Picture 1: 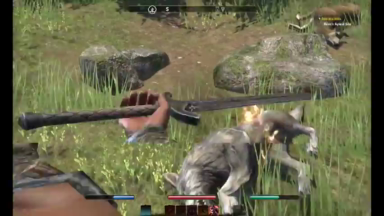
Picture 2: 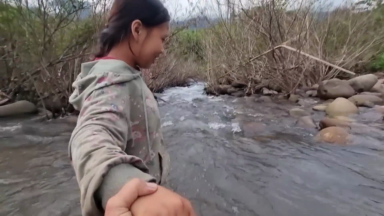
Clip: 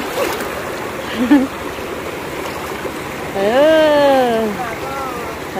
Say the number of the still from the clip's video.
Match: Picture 2